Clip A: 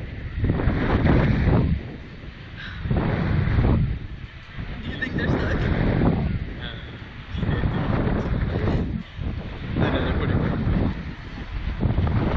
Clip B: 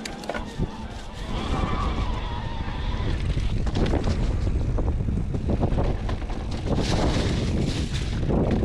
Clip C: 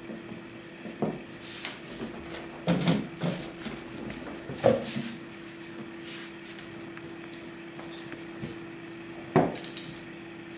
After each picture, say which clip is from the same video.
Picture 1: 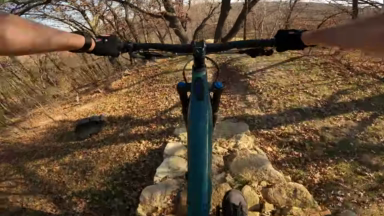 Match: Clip B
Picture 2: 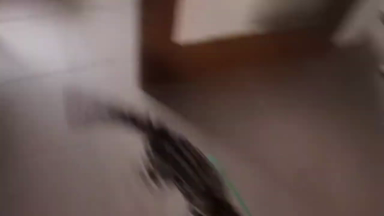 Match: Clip C